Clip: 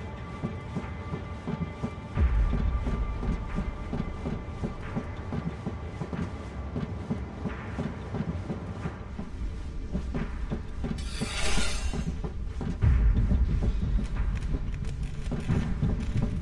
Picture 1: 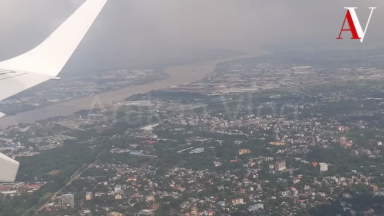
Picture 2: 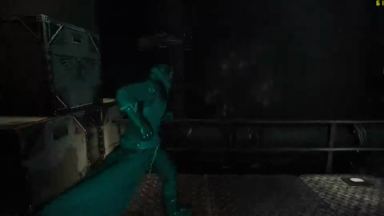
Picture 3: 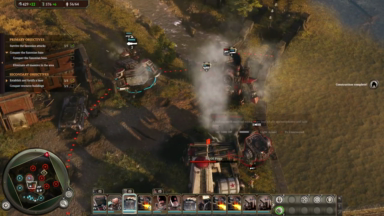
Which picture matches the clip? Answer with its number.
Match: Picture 2